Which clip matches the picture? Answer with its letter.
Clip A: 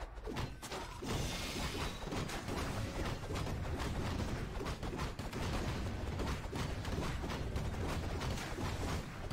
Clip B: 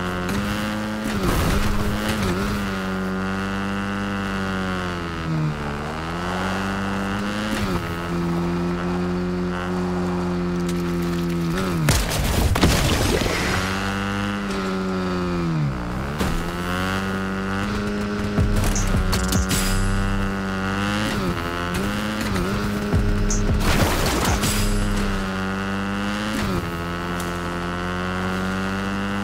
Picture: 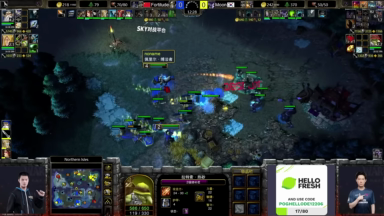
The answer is A